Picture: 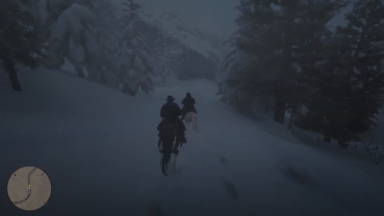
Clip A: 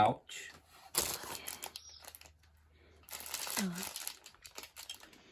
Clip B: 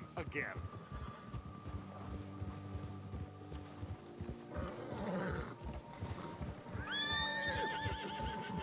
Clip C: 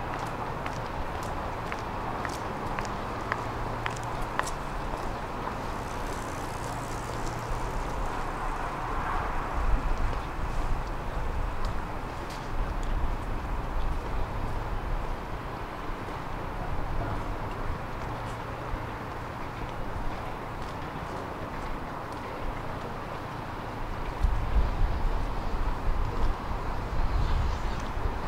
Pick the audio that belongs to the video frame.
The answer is B